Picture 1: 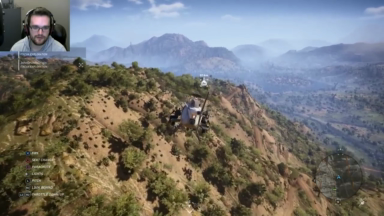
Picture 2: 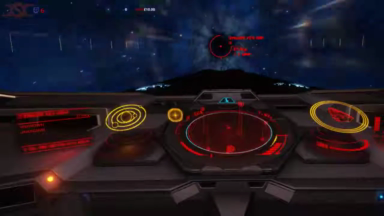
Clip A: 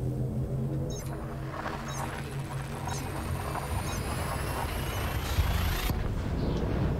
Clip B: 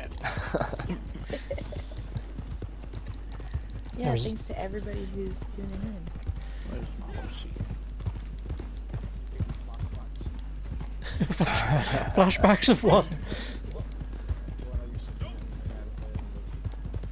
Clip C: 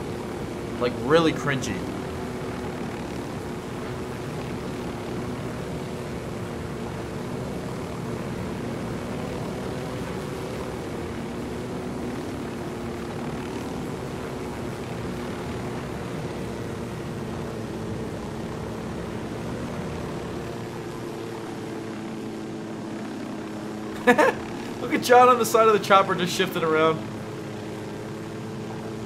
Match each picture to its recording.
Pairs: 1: C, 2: A